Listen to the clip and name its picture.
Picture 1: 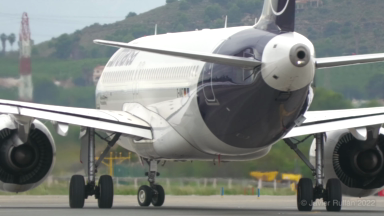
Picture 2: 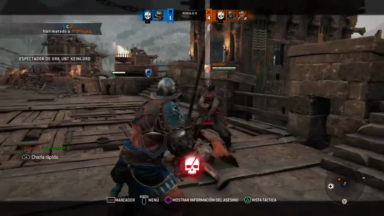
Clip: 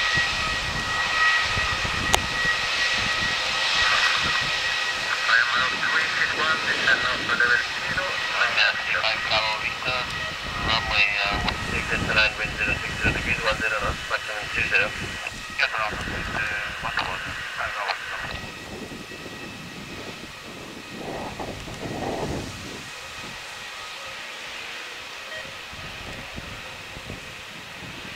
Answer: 1